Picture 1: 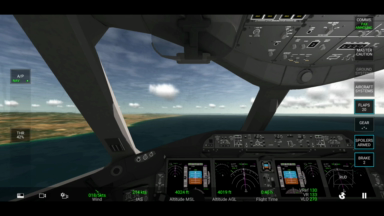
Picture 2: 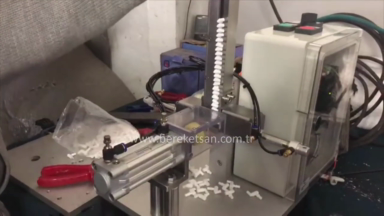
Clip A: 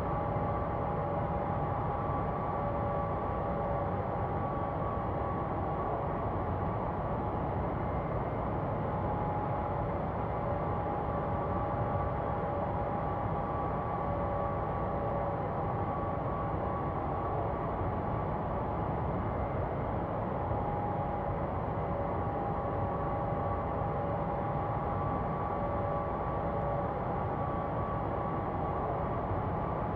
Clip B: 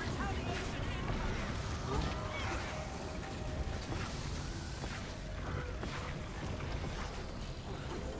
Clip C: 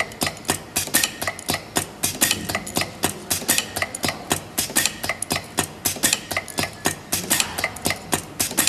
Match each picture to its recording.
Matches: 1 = A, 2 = C